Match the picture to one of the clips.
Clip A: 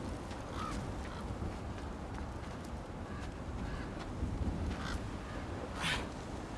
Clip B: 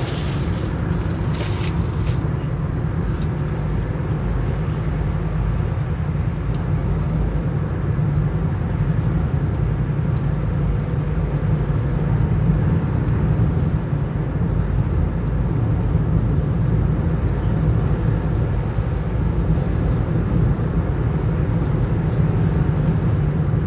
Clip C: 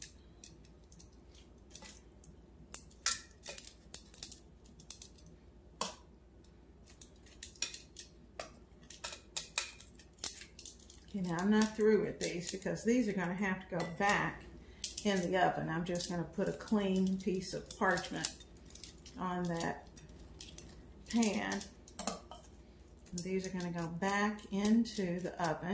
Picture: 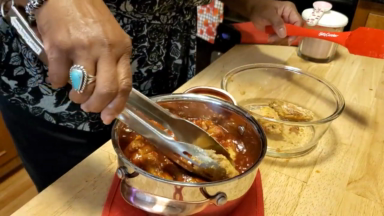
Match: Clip C